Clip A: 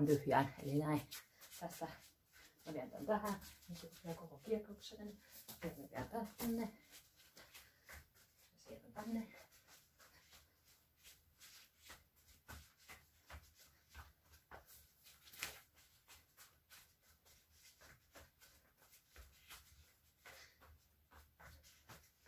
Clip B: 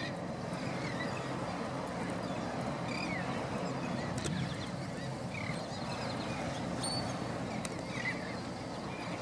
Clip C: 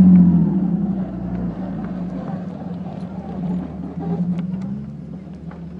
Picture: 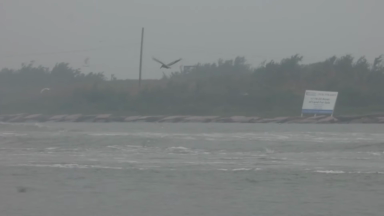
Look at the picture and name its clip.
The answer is B